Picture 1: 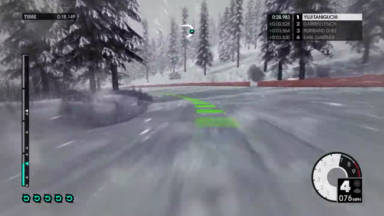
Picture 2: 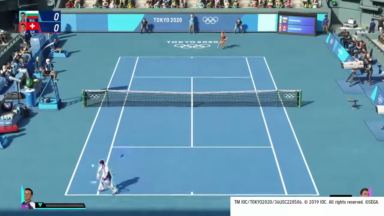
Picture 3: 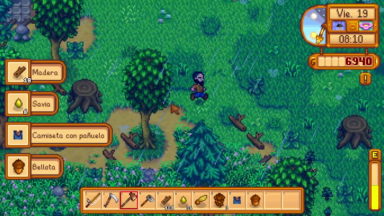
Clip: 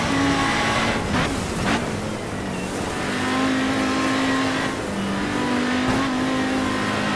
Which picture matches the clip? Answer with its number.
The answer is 1